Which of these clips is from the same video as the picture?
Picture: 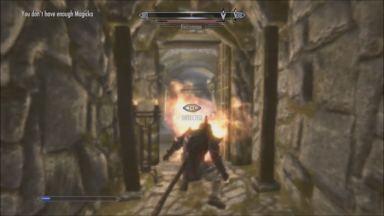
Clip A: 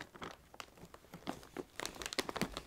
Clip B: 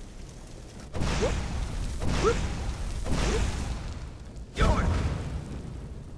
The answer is B